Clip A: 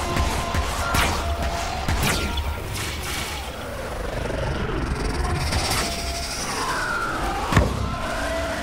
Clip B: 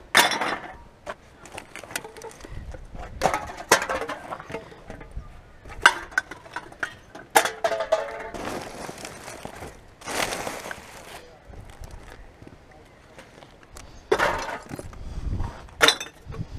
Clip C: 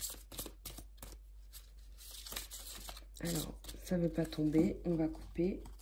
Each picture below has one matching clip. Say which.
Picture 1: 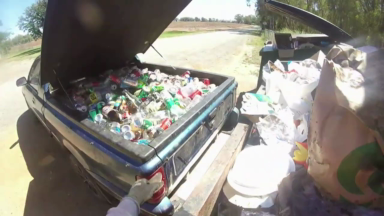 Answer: B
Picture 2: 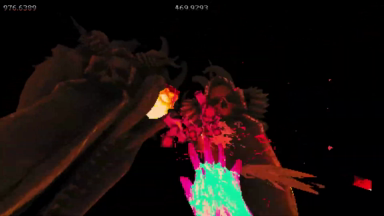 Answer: A